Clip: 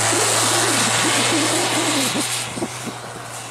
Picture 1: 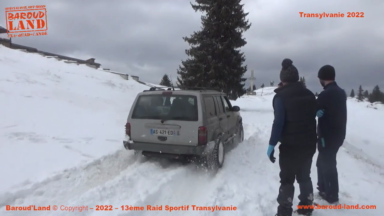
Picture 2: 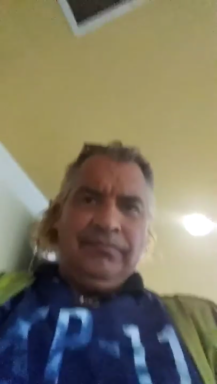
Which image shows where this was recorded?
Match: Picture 1